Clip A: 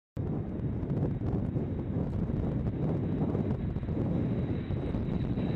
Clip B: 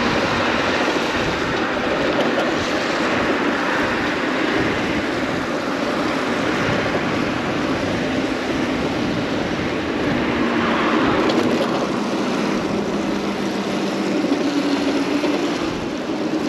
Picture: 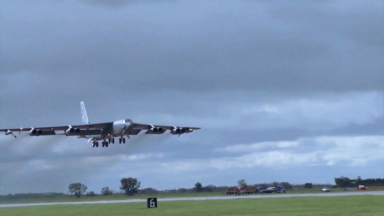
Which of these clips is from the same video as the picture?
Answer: A